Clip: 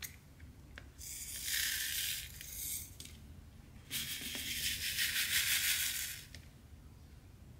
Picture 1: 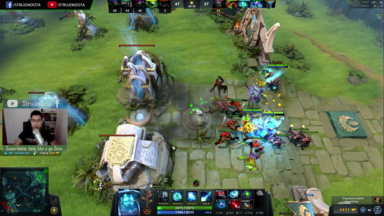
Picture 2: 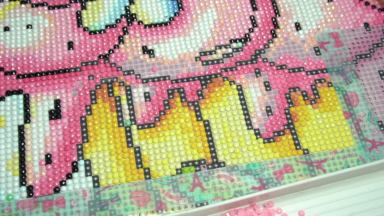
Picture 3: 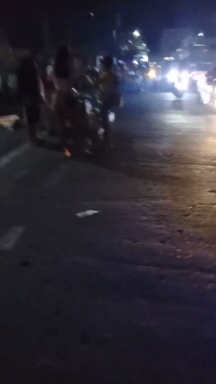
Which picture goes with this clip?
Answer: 2